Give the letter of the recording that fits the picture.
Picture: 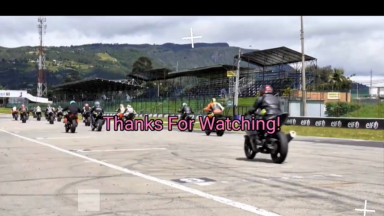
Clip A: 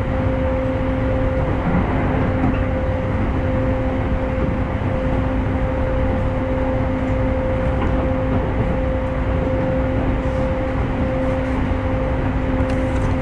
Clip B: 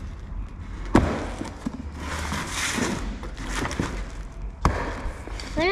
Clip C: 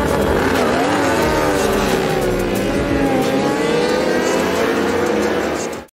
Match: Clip C